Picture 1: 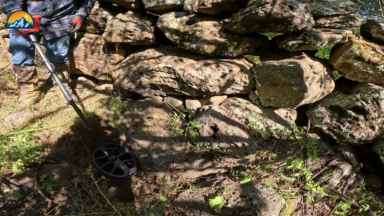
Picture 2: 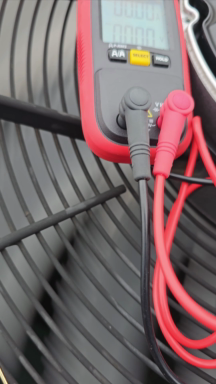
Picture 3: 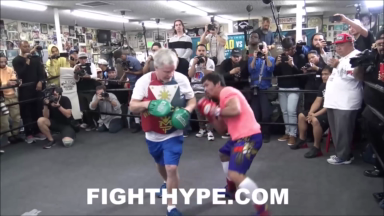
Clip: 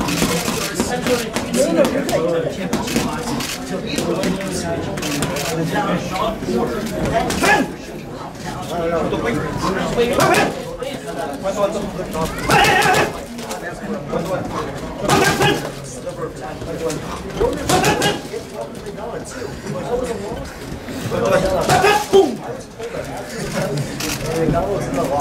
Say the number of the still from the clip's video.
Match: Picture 3